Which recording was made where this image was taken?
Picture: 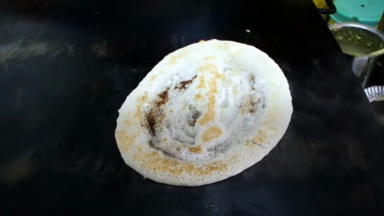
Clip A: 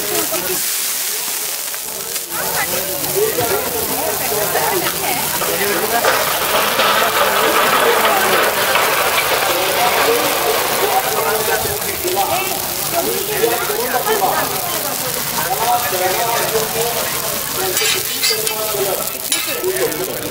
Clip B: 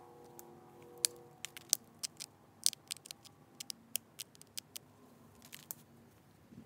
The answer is A